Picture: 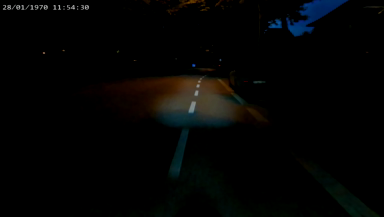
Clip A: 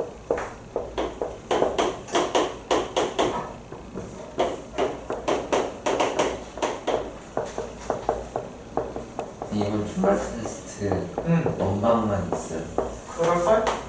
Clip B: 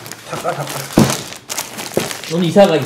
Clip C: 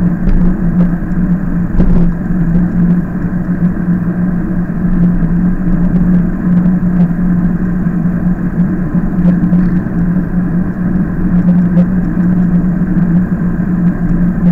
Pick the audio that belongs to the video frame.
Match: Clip C